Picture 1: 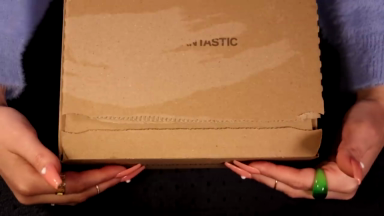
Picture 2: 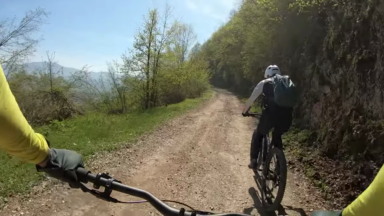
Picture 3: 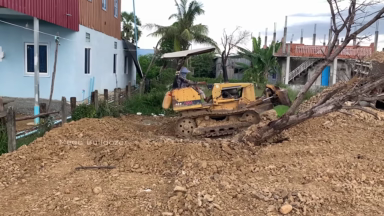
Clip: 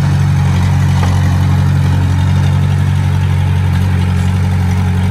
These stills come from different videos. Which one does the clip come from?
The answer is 3